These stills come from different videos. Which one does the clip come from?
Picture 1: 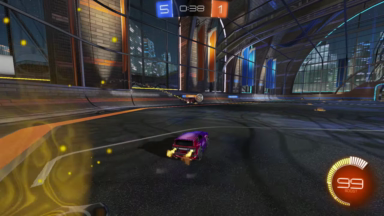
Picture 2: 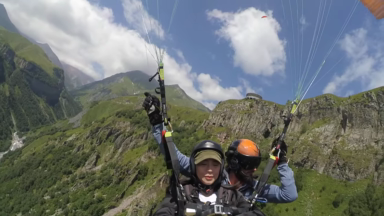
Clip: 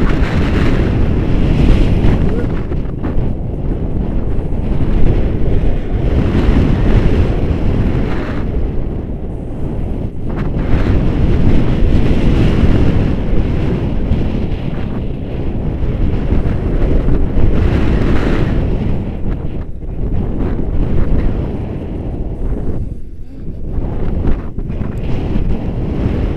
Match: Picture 2